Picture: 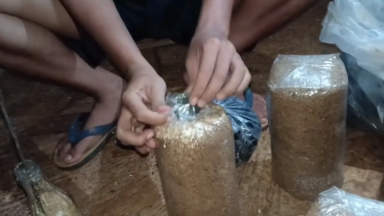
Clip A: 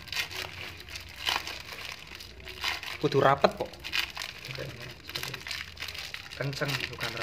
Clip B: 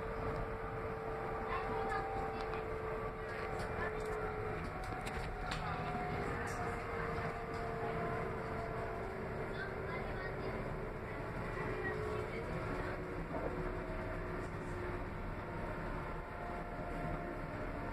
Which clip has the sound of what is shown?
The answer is A